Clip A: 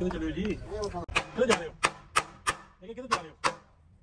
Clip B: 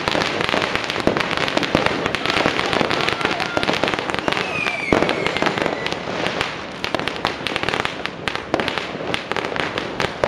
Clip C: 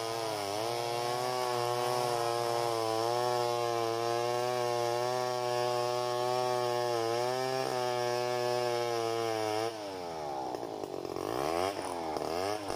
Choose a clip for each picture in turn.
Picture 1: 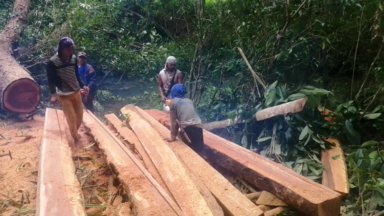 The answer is C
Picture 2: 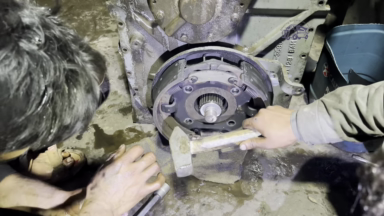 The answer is A